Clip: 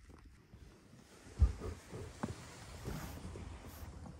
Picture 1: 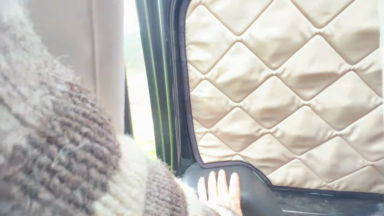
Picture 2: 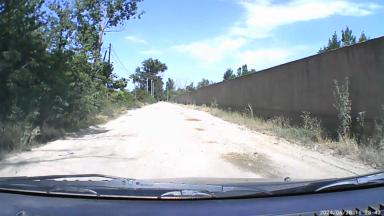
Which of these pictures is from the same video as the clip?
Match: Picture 1